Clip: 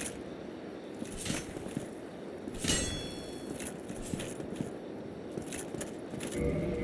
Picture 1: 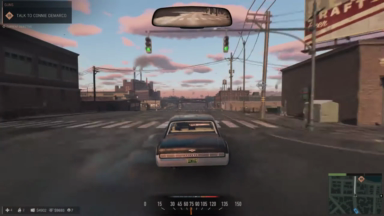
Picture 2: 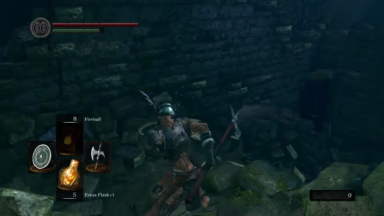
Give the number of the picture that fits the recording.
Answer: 2